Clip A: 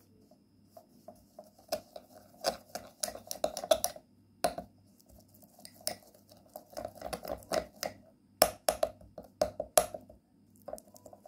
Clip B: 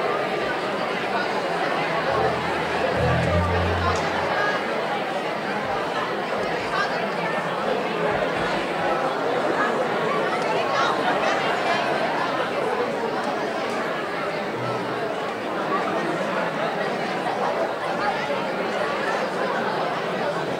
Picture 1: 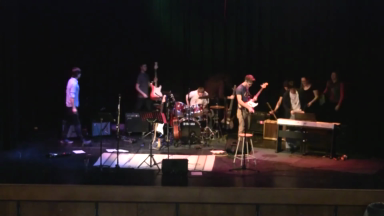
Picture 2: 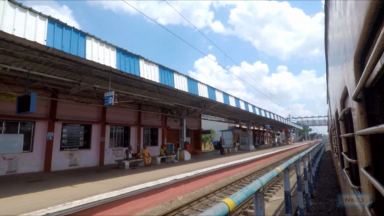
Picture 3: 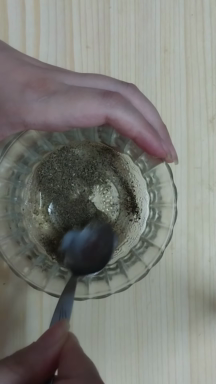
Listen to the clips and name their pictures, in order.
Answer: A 3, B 1